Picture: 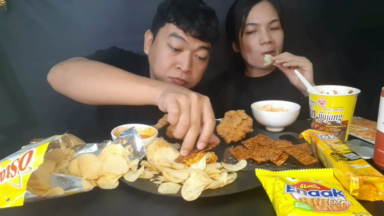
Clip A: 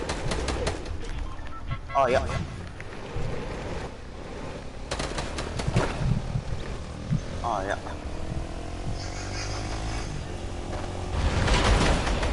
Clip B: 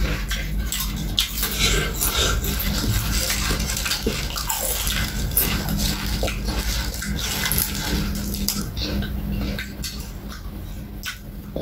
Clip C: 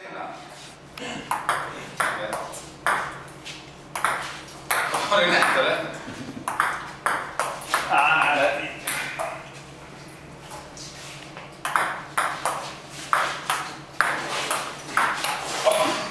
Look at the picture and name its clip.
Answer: B